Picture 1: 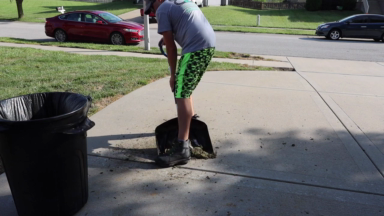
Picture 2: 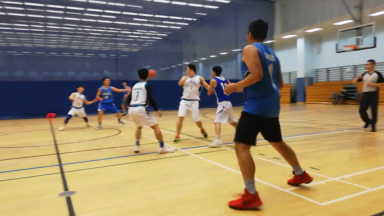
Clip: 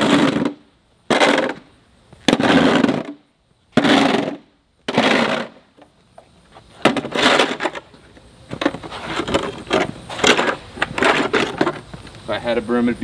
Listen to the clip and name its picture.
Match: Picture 1